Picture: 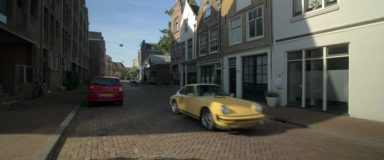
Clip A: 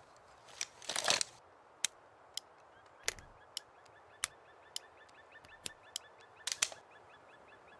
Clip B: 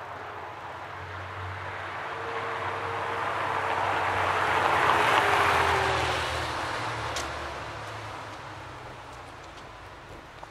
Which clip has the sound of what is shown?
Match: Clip B